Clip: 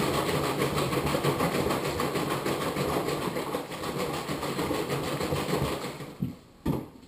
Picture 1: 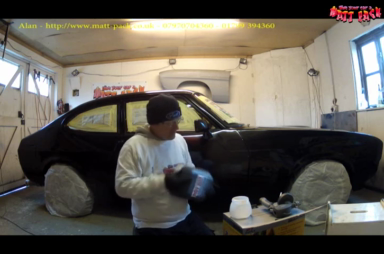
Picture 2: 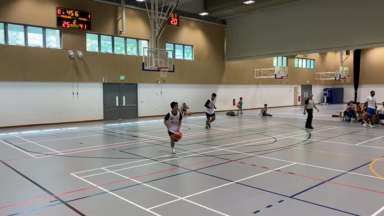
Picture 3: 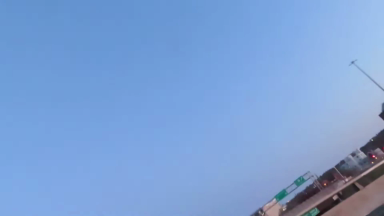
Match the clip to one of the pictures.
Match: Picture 1